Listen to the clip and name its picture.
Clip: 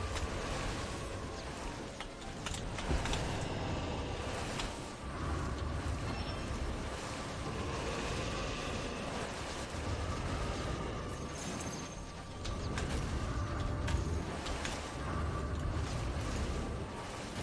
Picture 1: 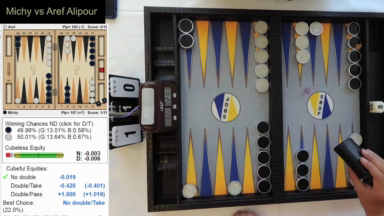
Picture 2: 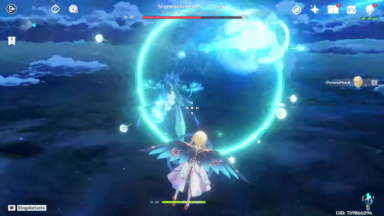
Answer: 2